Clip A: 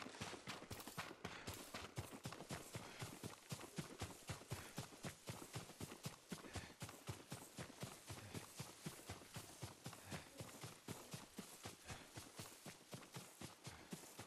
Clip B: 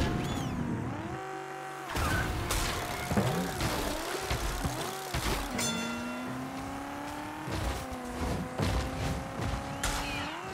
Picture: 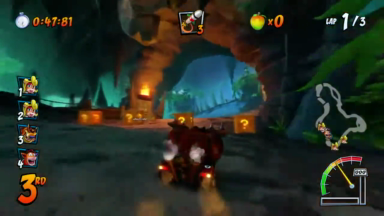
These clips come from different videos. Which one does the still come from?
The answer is B